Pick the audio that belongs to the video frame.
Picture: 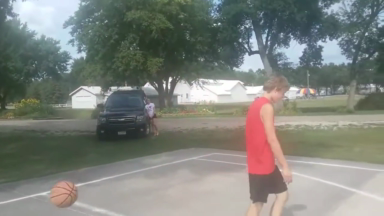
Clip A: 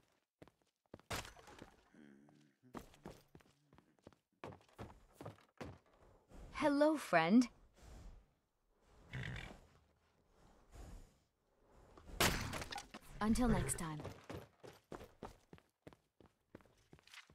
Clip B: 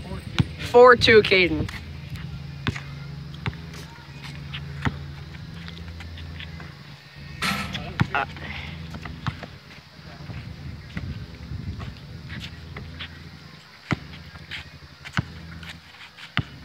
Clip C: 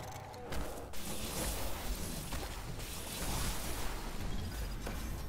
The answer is B